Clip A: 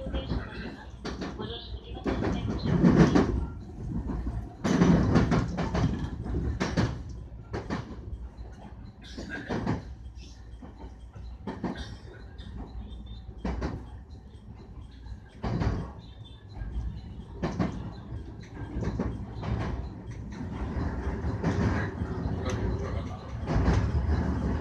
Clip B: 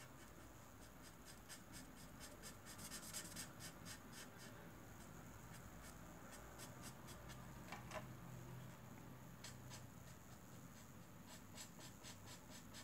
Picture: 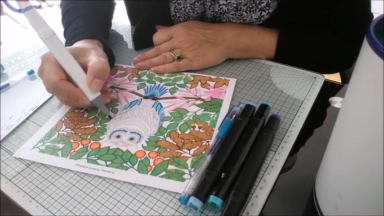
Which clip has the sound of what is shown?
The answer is B